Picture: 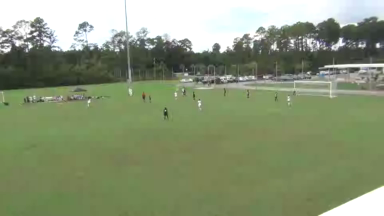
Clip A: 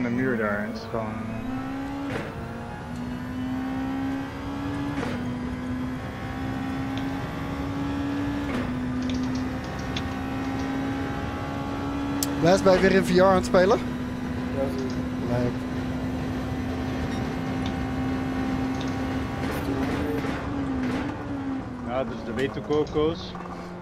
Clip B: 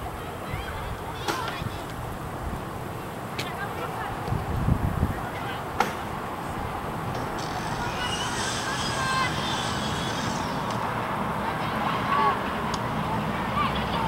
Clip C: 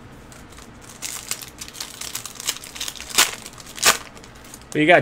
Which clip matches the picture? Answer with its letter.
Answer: B